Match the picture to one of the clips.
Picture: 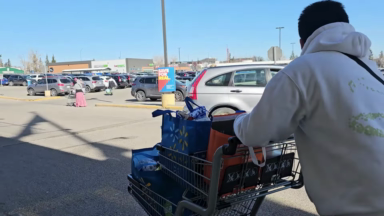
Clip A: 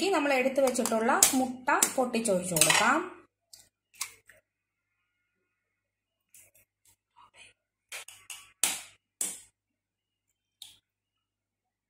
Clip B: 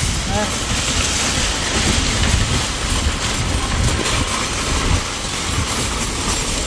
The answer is B